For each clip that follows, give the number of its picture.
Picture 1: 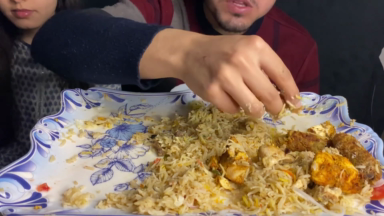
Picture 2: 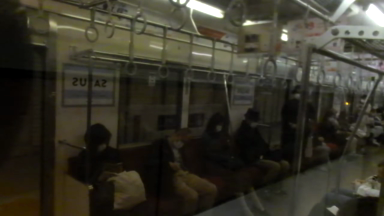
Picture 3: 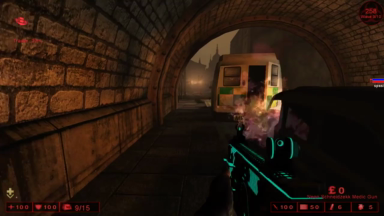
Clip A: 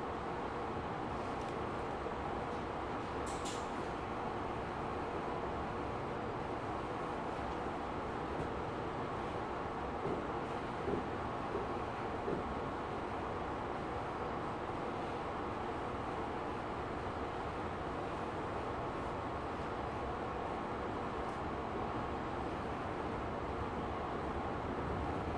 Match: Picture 2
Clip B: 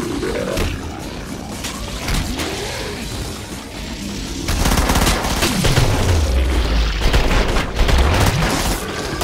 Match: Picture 3